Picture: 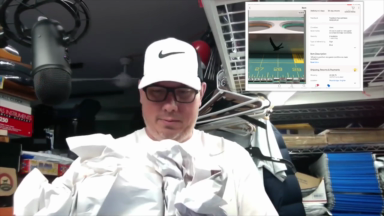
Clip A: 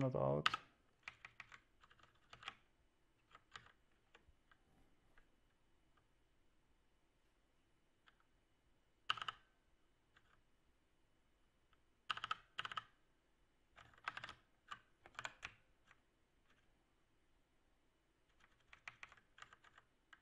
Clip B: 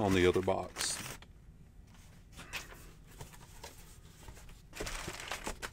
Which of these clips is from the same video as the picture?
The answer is B